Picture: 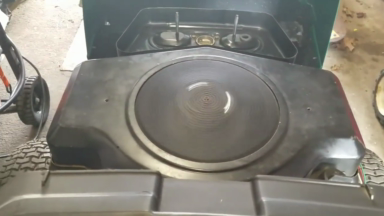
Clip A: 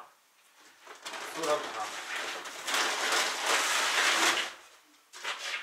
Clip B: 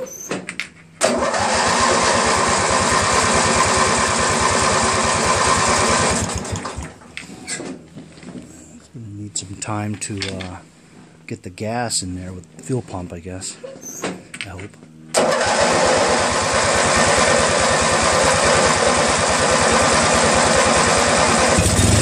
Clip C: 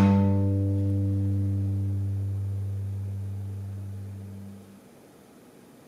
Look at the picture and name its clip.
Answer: B